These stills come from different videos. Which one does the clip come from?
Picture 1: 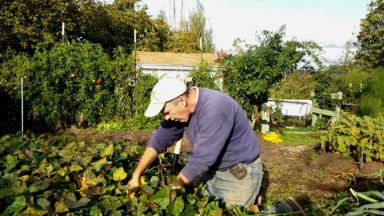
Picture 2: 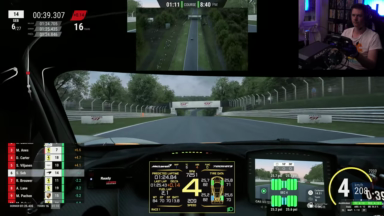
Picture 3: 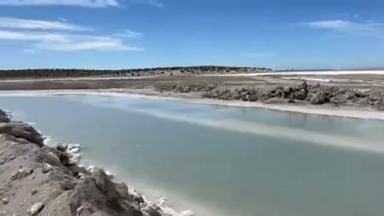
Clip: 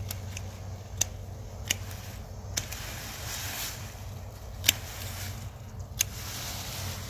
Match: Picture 1